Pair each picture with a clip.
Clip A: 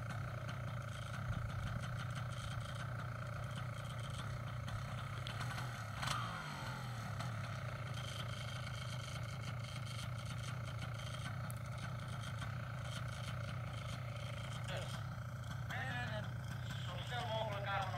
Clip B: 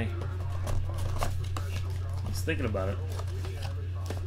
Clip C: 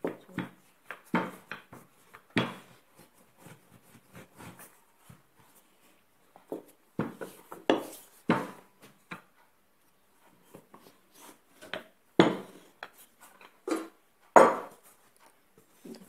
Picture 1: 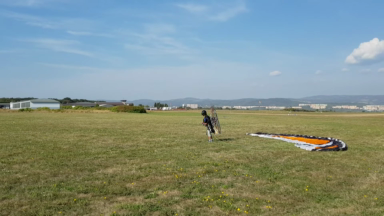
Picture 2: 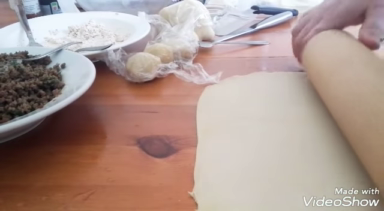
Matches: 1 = A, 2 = C